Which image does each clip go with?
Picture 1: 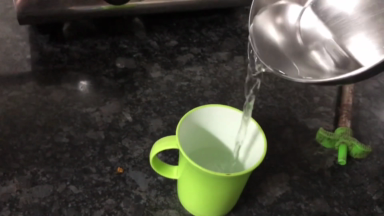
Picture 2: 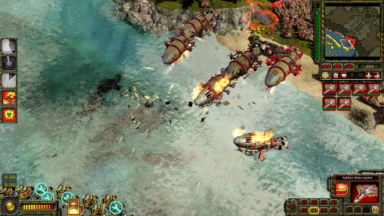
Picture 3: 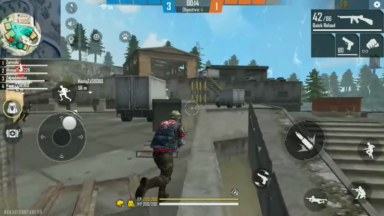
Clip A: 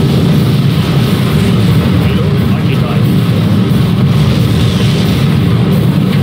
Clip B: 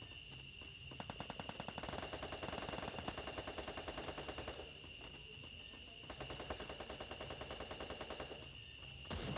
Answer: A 2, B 3